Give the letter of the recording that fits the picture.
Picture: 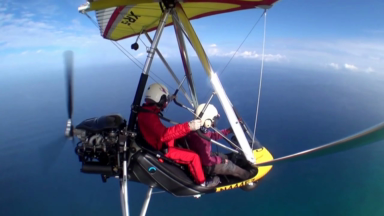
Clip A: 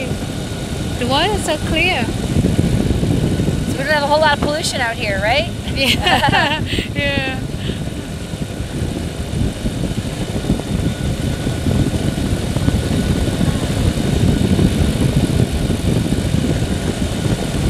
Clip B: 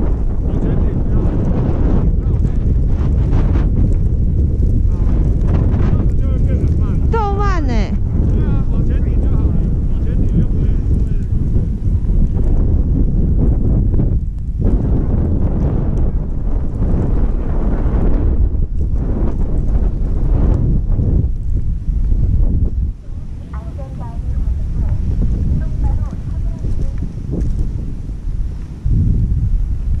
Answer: A